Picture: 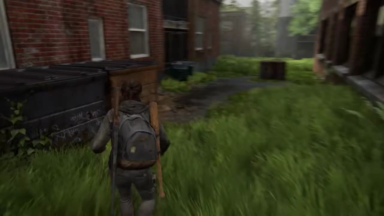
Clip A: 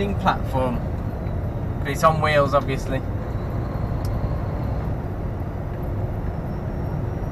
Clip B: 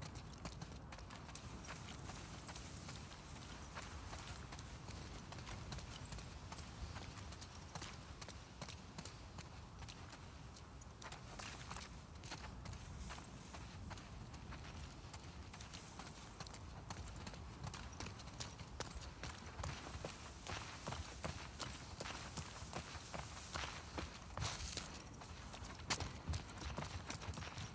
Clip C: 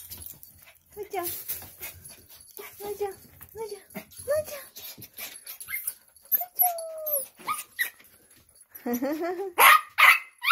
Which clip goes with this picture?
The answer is B